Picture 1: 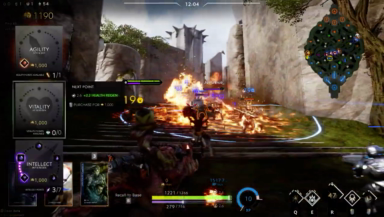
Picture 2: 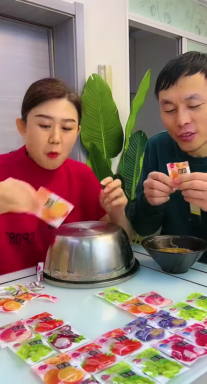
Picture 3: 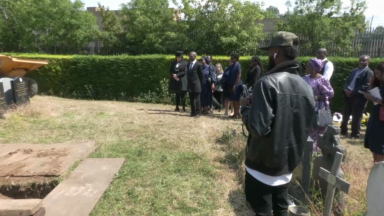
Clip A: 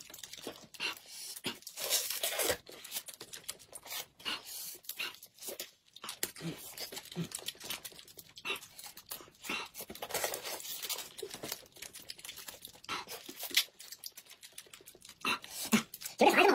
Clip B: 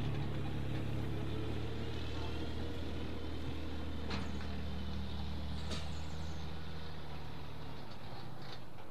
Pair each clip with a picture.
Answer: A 2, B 3